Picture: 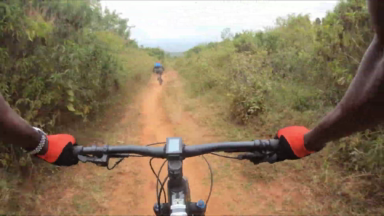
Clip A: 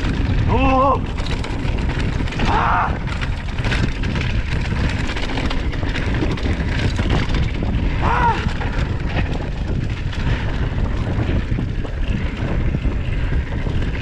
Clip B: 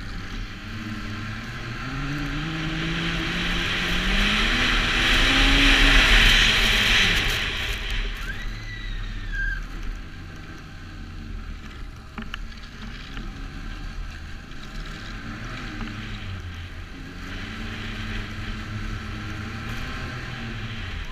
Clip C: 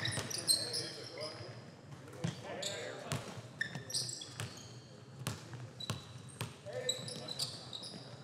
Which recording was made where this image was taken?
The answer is A